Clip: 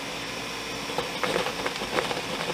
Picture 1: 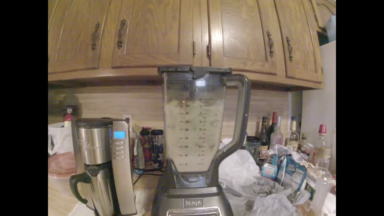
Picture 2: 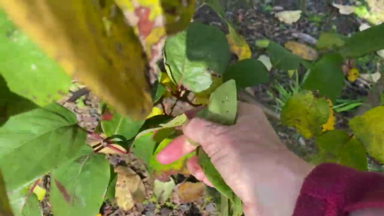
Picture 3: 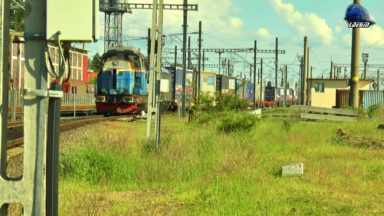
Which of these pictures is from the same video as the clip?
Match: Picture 1